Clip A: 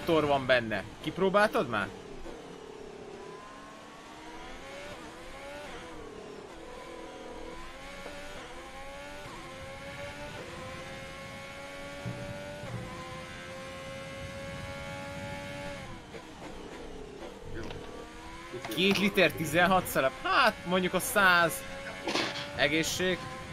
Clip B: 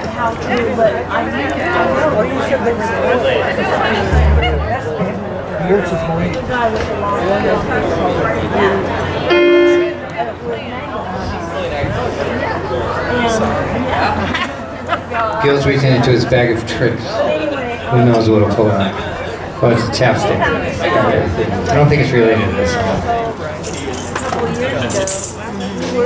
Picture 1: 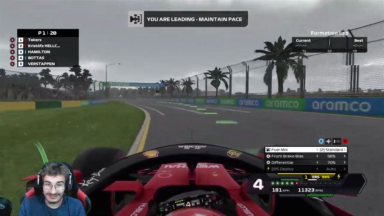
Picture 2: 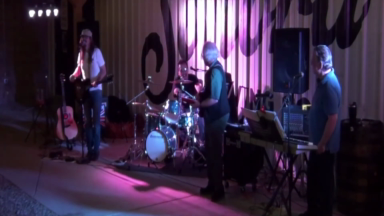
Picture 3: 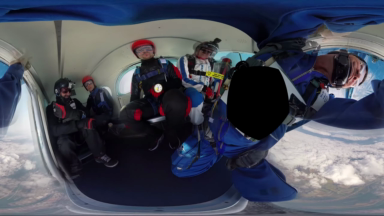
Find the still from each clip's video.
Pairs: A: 1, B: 2